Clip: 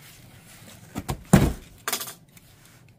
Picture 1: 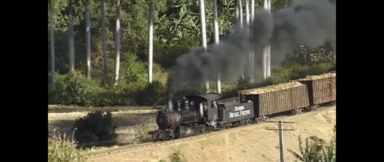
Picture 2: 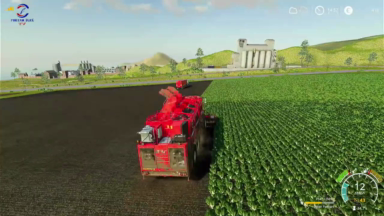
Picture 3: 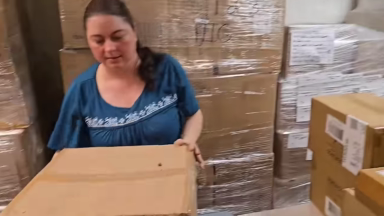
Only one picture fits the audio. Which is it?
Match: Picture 3